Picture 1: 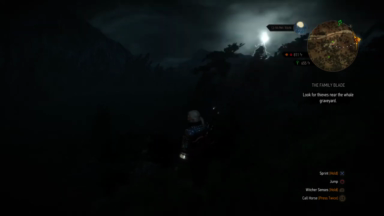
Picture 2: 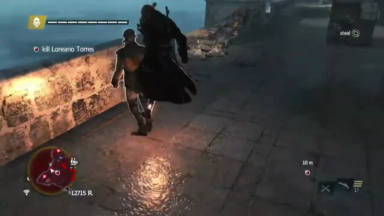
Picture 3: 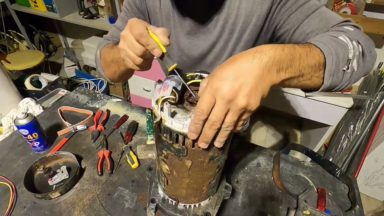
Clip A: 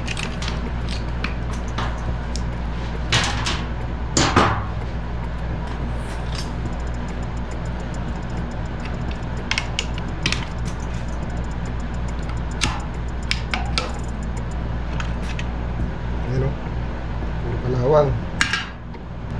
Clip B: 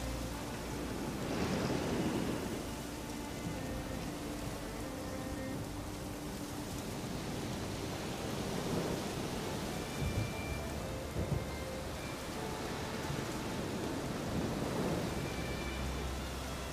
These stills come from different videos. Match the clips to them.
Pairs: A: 3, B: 1